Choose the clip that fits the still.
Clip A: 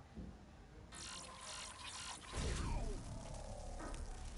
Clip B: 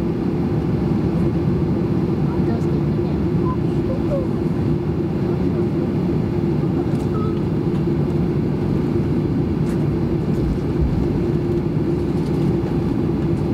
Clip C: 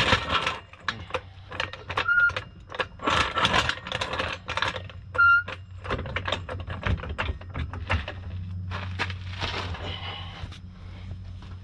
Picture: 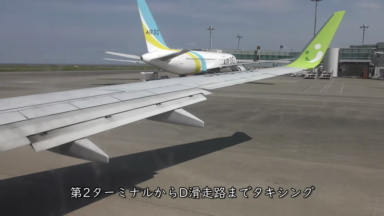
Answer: B